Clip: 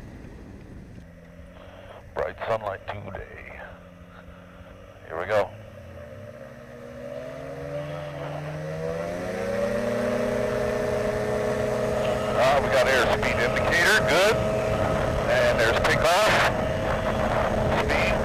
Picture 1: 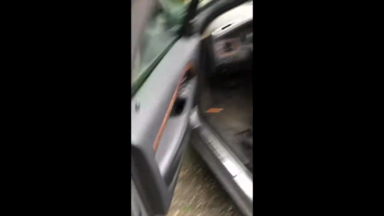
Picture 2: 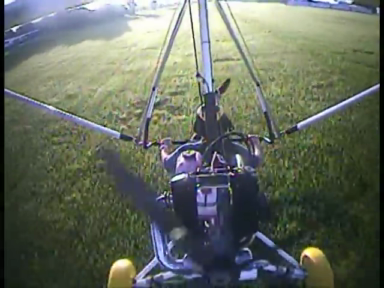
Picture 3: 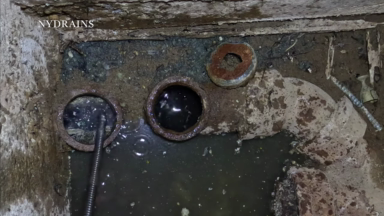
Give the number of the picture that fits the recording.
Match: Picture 2